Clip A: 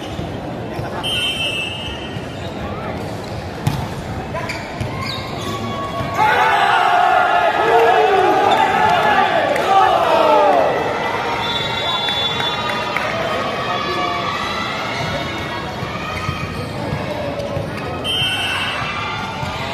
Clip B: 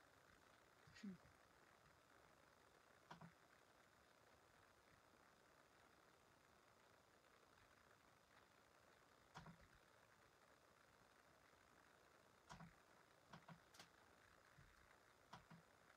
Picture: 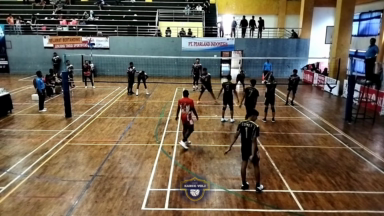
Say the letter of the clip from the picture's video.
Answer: A